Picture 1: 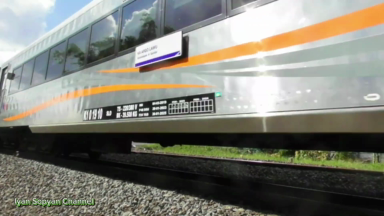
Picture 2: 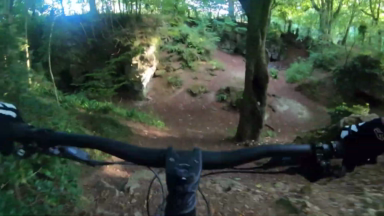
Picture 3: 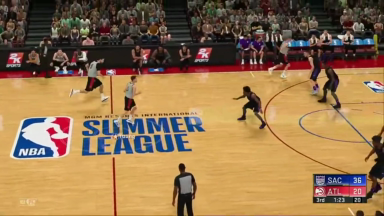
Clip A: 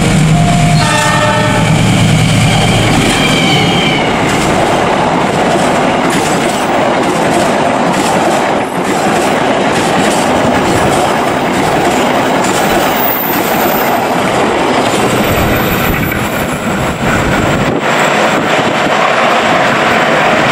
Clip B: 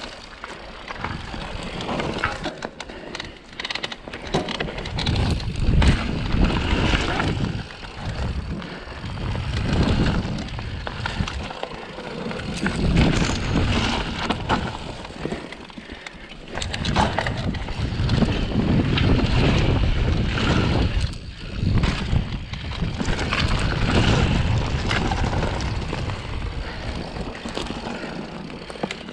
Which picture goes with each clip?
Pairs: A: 1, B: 2